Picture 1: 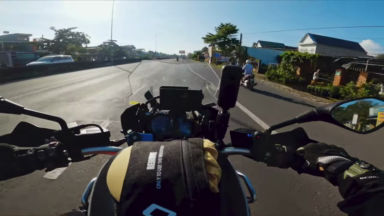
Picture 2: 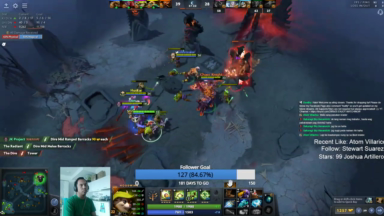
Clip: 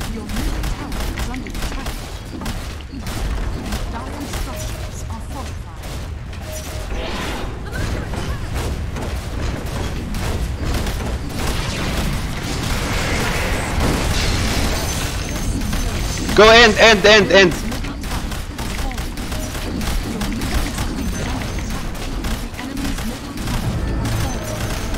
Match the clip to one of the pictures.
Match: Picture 2